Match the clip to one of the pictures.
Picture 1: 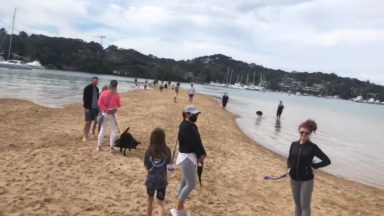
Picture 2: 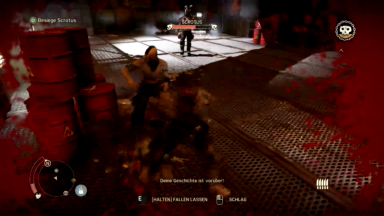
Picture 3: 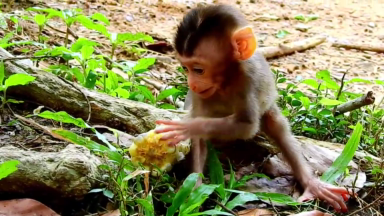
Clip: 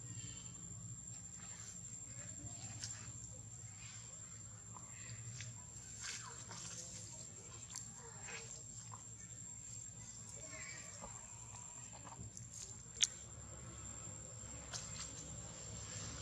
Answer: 3